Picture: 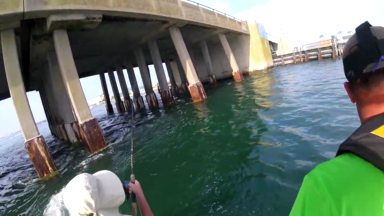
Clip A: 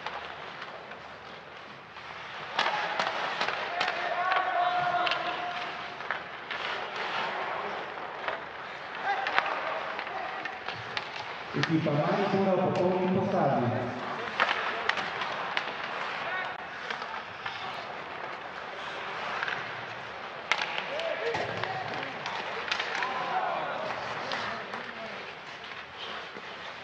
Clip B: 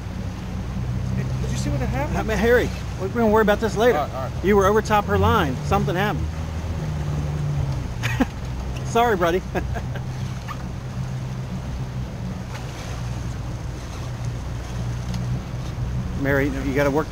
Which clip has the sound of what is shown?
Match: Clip B